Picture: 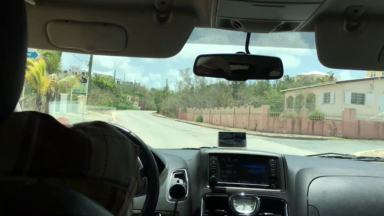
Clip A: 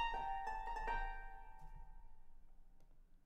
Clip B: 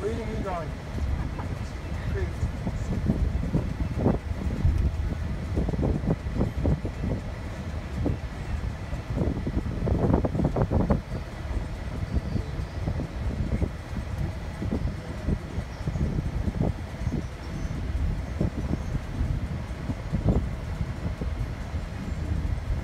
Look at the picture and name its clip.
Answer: B